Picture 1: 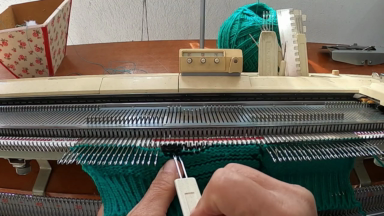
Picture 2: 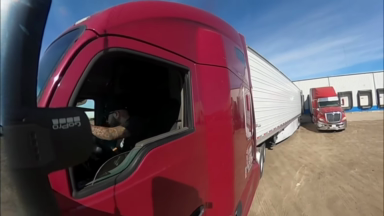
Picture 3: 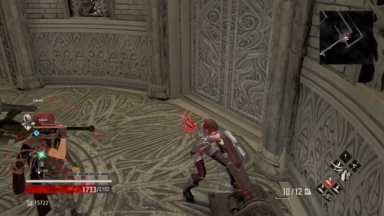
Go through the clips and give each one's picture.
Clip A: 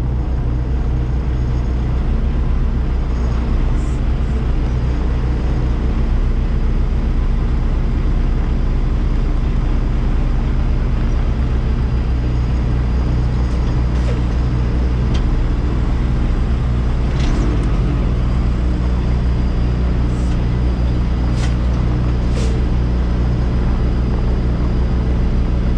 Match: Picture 2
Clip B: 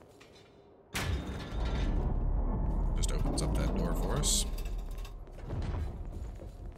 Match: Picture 3